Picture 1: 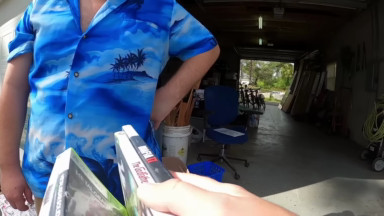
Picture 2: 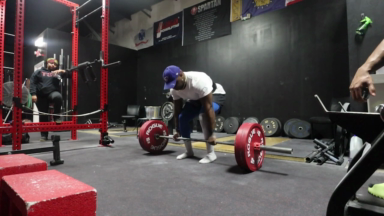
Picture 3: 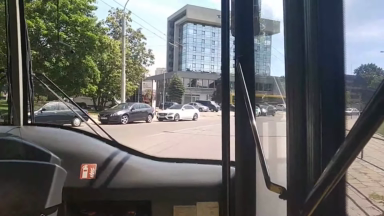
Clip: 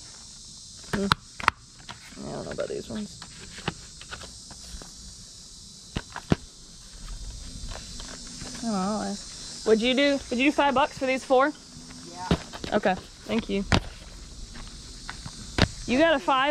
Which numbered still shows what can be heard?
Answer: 1